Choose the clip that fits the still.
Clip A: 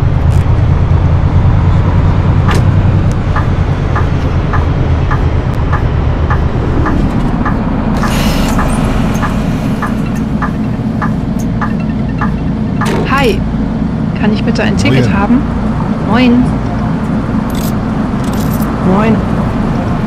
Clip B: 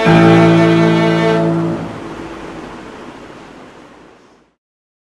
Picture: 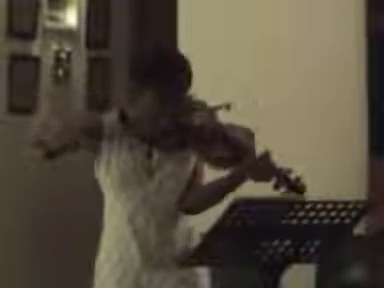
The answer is B